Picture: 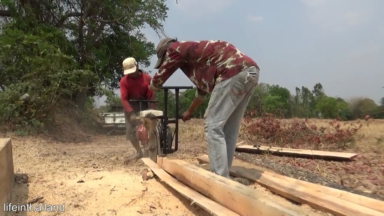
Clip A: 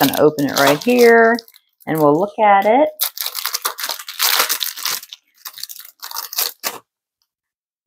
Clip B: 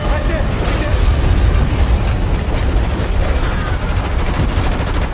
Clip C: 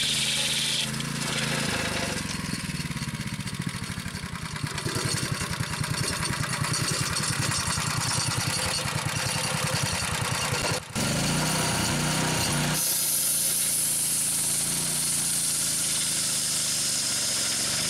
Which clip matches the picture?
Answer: C